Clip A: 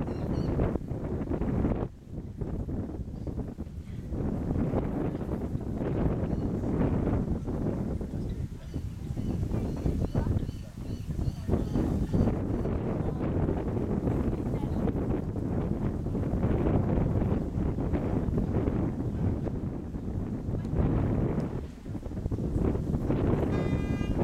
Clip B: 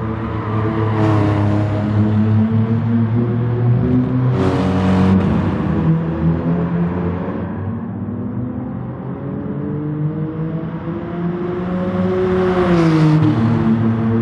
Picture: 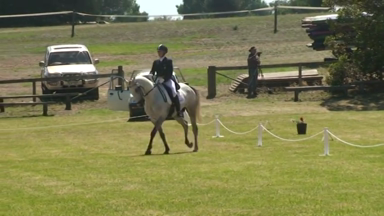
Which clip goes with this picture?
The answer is A